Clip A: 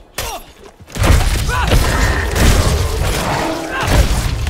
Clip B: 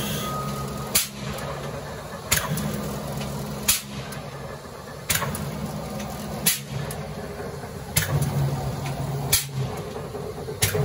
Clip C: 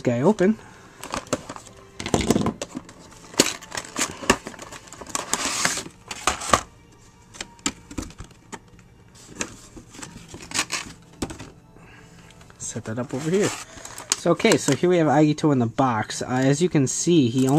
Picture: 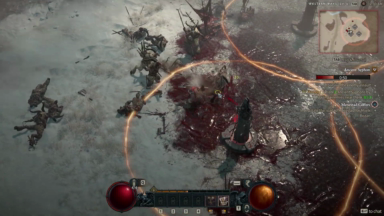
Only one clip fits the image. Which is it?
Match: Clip A